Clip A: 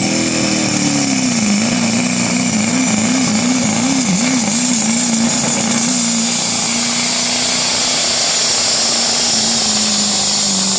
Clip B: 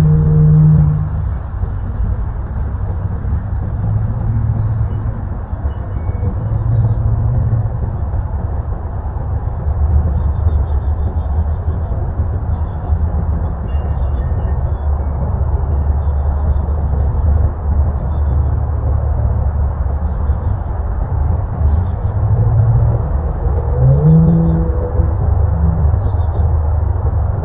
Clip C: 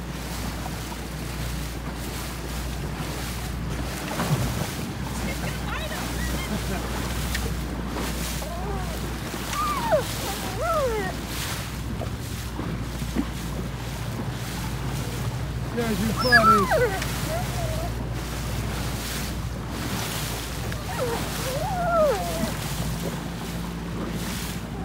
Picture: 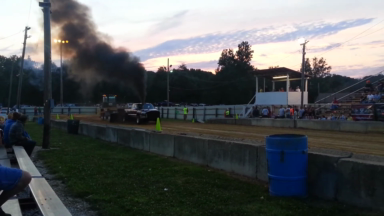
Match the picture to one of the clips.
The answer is A